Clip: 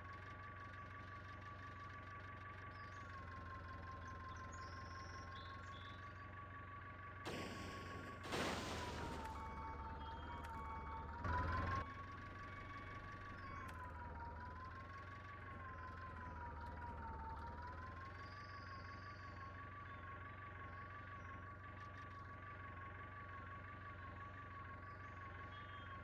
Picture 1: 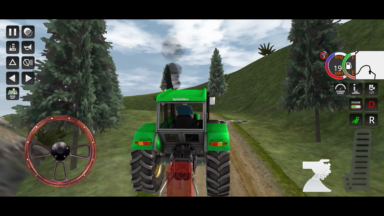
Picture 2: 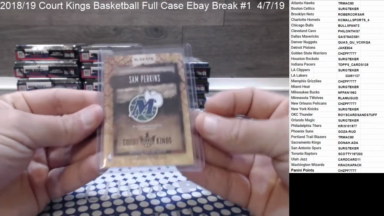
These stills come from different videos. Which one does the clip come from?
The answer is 1